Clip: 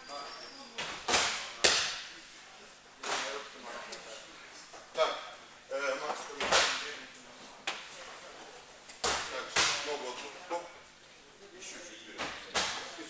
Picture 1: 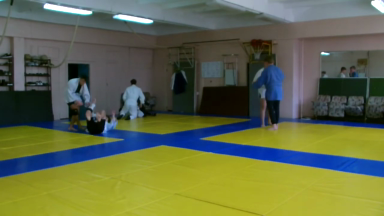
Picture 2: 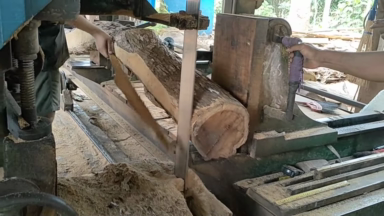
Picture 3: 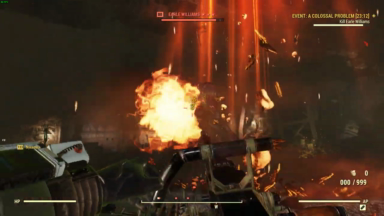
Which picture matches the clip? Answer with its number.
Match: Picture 1